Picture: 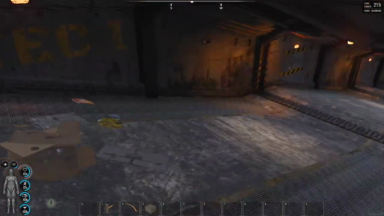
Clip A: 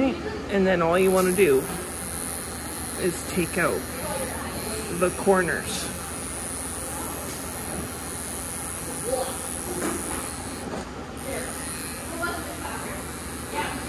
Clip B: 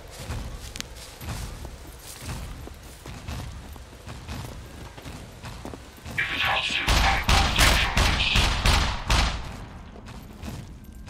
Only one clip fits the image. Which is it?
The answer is B